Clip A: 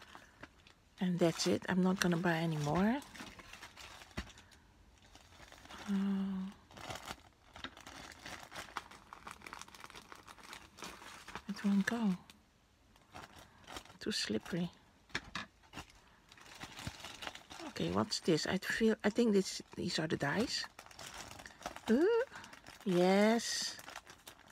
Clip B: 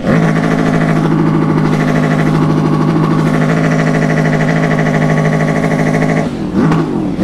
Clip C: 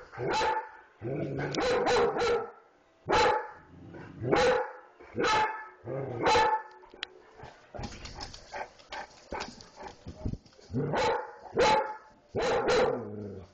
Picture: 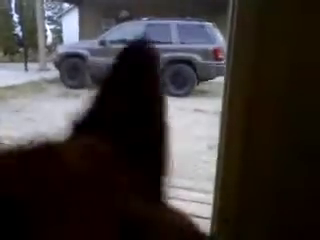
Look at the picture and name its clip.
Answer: C